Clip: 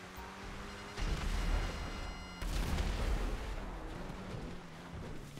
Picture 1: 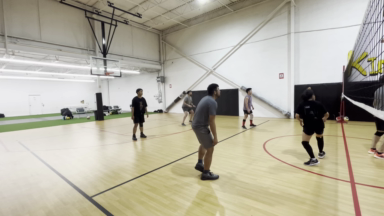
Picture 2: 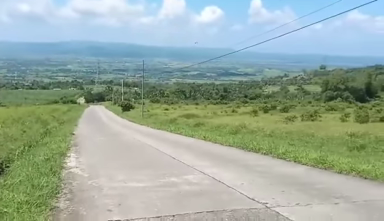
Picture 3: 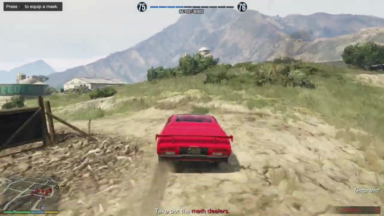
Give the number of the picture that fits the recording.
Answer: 3